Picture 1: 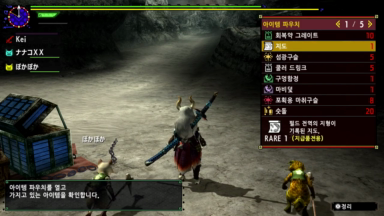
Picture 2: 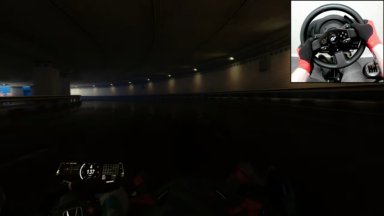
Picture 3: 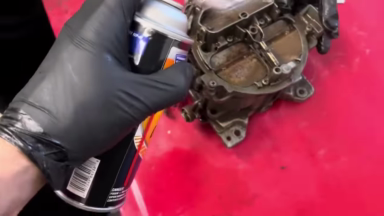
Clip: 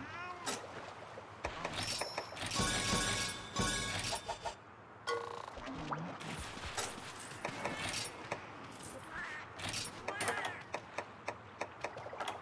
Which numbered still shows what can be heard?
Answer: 1